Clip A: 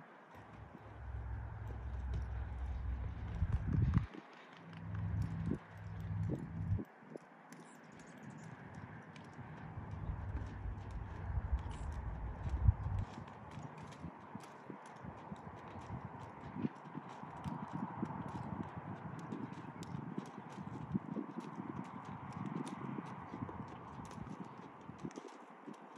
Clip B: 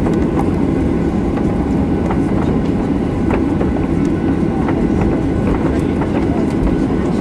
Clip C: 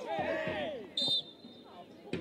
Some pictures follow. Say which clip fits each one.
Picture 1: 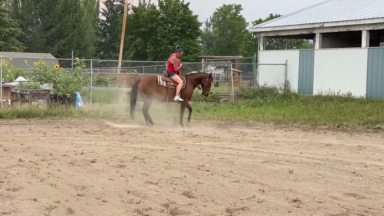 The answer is A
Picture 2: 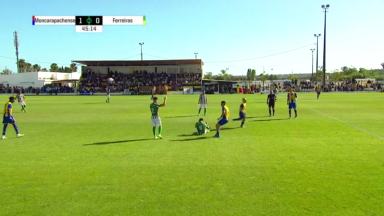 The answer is C